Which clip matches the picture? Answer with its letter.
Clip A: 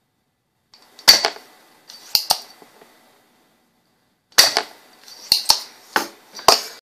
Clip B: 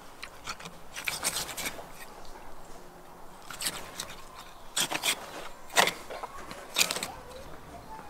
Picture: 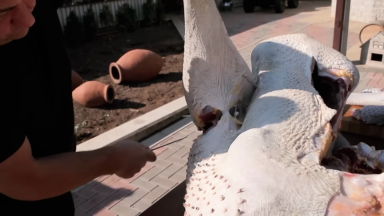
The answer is B